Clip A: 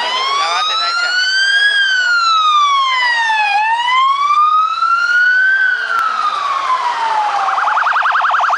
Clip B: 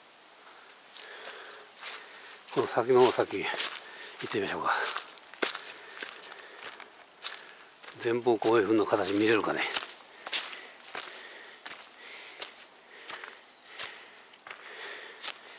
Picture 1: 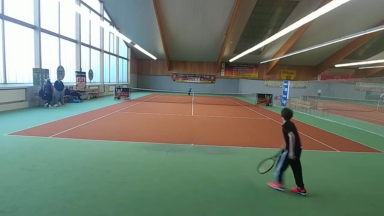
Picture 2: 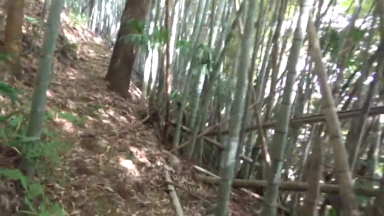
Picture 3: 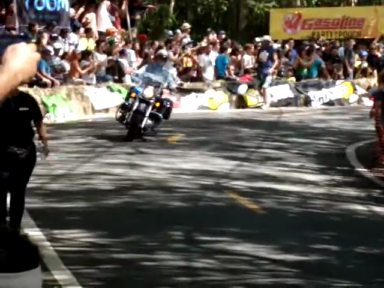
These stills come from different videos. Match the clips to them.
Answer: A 3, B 2